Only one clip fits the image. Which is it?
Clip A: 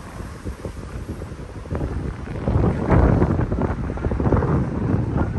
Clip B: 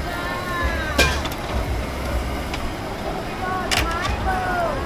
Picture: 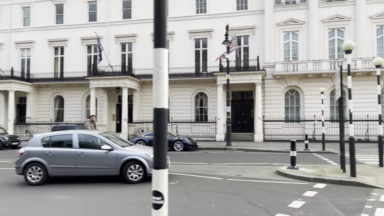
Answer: A